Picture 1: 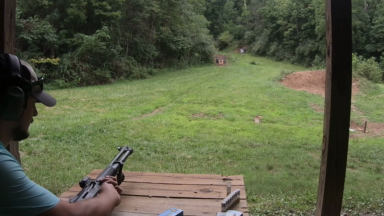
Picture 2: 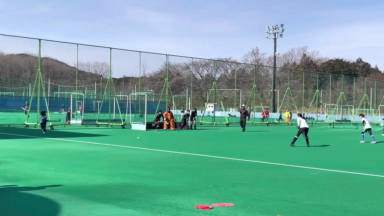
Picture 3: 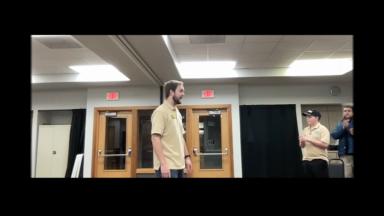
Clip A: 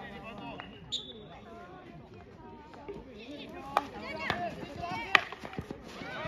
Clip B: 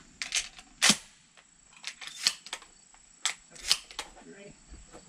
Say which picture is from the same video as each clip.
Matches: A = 2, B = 1